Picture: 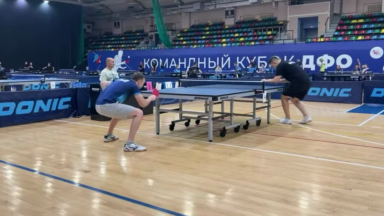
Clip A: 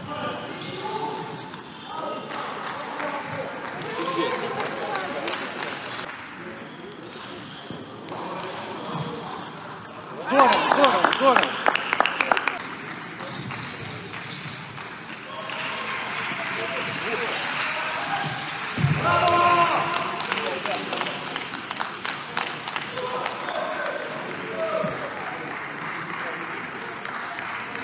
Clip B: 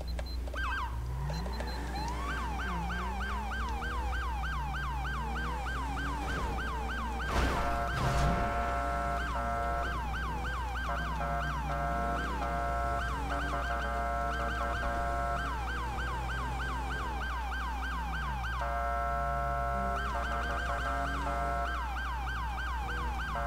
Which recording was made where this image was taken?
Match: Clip A